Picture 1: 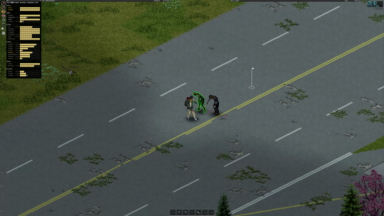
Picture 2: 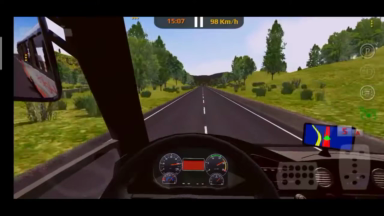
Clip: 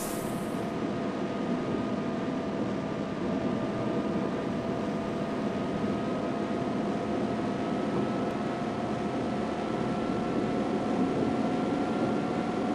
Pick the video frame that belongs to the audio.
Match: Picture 2